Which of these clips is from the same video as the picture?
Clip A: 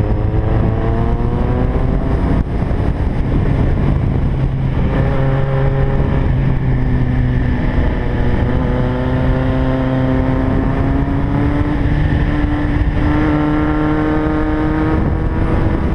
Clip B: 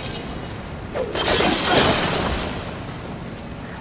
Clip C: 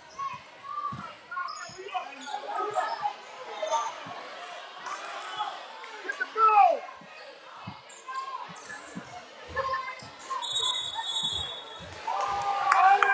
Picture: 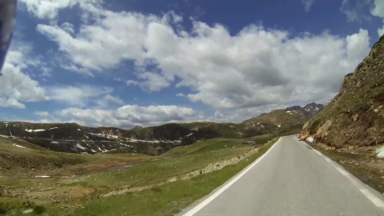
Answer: A